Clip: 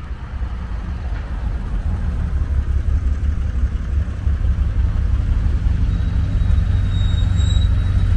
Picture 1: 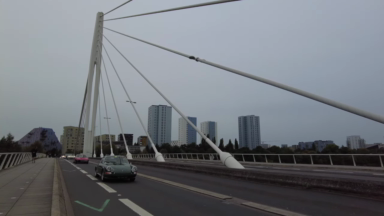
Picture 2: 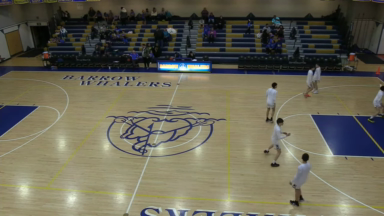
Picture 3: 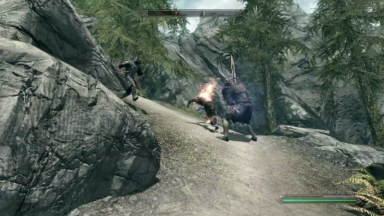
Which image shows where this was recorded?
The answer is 1